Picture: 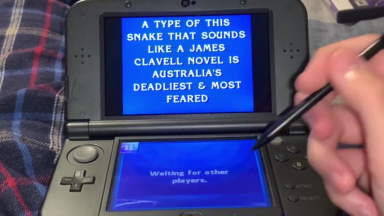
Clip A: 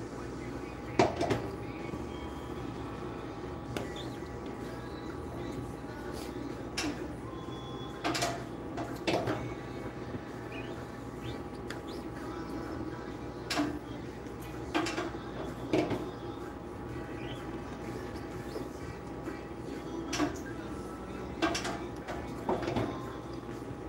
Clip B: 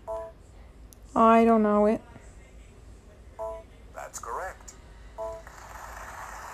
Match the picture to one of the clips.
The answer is B